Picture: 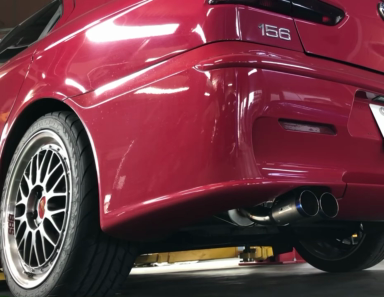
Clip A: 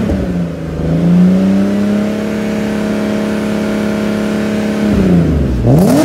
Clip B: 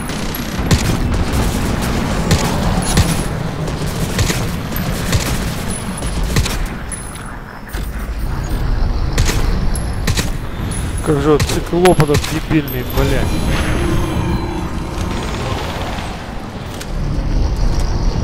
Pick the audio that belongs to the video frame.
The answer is A